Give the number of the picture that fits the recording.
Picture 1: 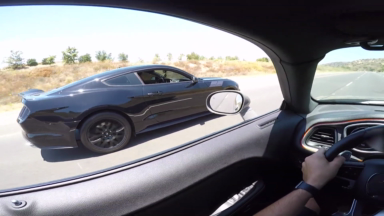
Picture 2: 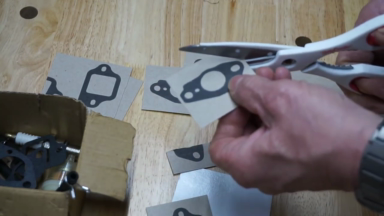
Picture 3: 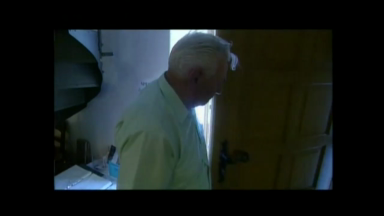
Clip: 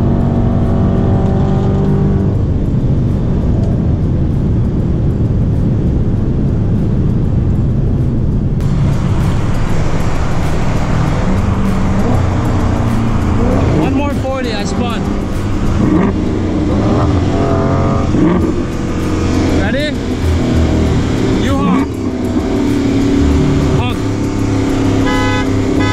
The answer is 1